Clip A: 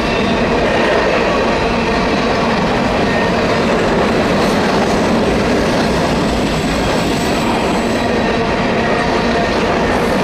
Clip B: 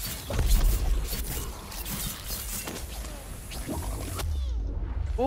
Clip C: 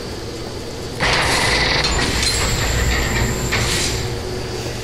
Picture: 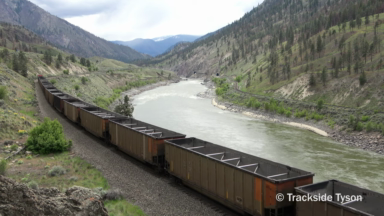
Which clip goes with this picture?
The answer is A